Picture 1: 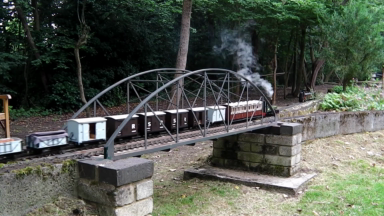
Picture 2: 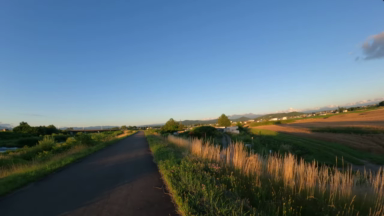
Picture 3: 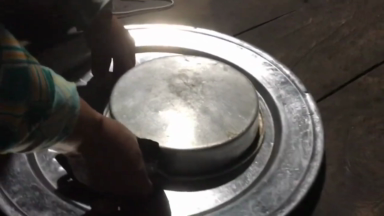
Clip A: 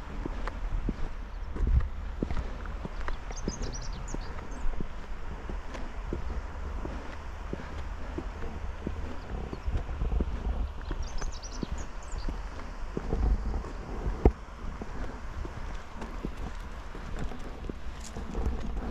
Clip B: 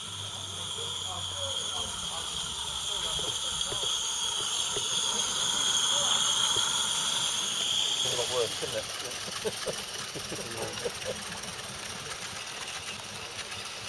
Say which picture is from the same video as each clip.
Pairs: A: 2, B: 1